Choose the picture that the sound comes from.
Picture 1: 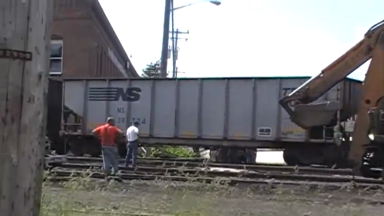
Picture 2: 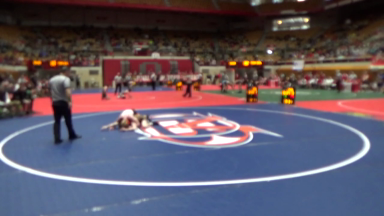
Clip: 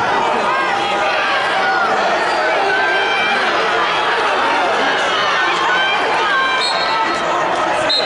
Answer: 2